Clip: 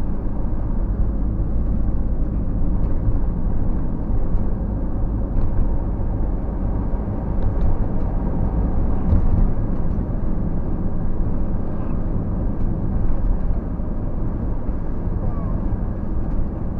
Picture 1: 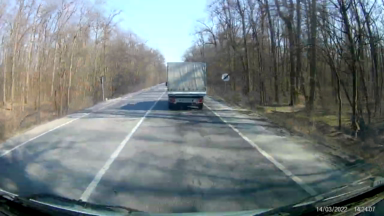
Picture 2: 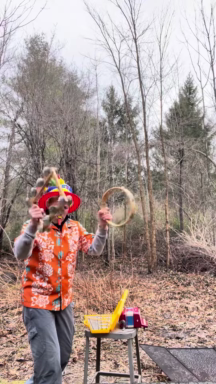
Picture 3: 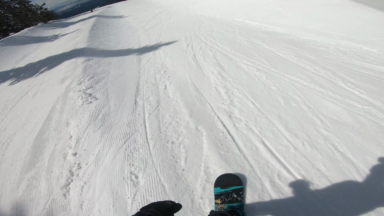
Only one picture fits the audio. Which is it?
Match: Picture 1